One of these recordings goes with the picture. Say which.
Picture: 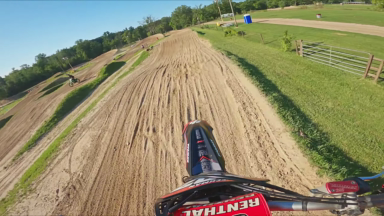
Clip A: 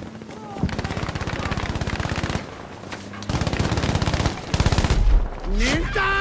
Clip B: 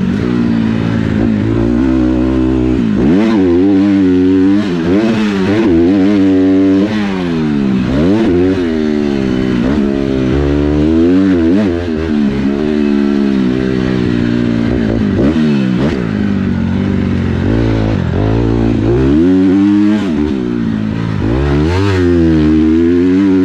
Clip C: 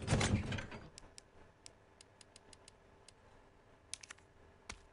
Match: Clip B